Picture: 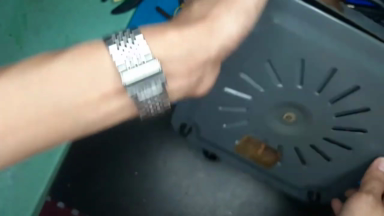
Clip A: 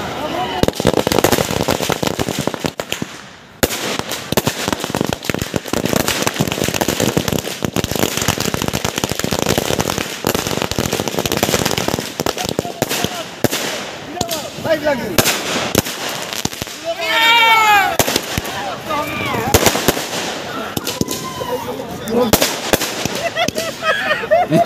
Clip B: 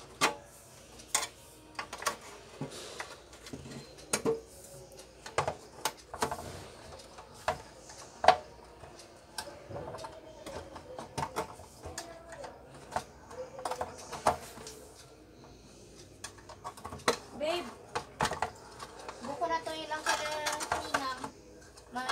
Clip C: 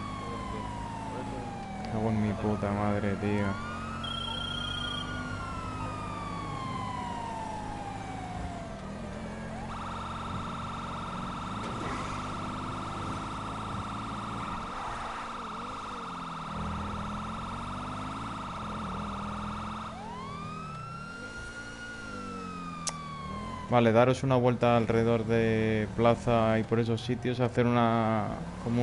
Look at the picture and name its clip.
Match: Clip B